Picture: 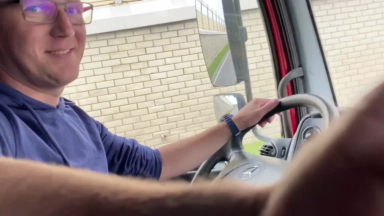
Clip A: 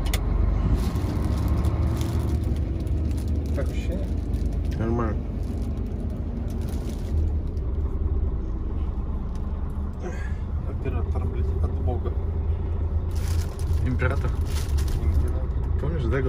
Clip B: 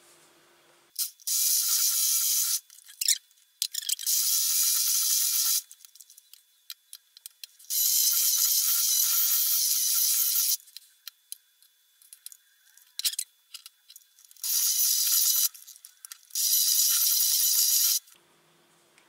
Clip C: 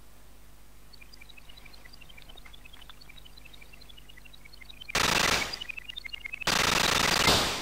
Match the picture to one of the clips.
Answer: A